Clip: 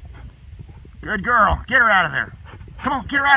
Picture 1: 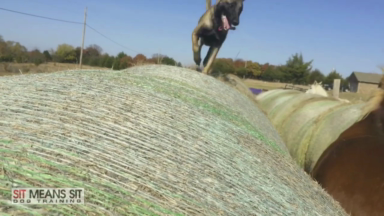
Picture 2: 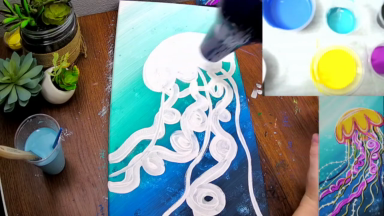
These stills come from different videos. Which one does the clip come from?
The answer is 1